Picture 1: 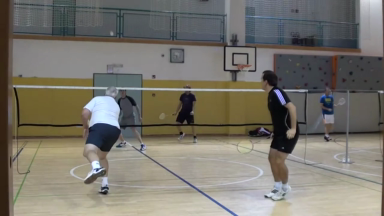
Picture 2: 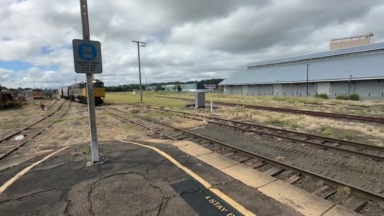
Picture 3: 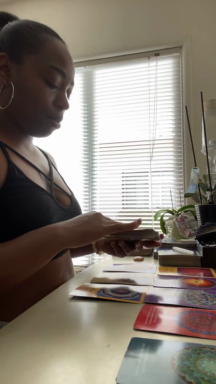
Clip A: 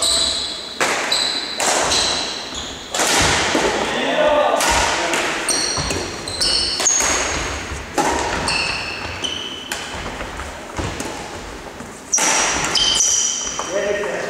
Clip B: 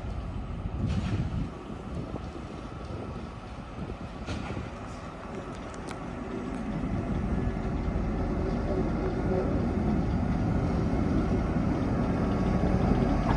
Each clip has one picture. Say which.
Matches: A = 1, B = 2